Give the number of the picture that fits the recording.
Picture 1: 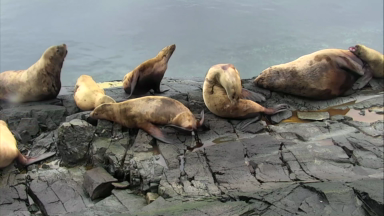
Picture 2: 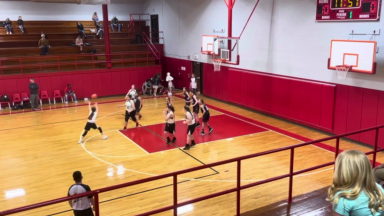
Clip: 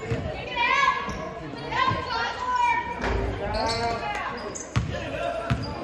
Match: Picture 2